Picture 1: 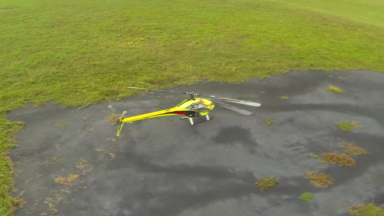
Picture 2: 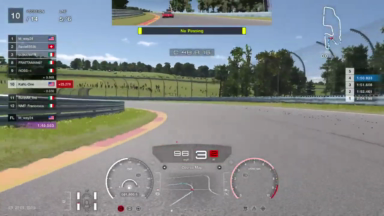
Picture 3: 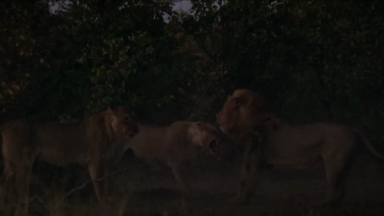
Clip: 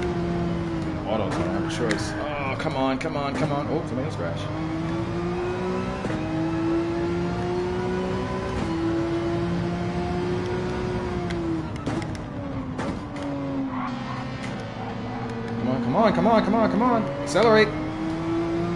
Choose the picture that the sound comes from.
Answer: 2